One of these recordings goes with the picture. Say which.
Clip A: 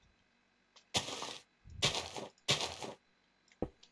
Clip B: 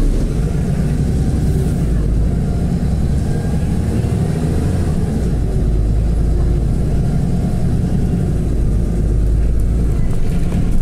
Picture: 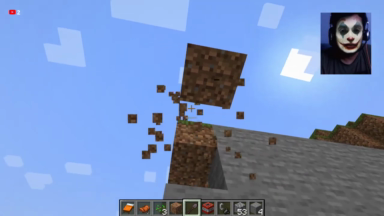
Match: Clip A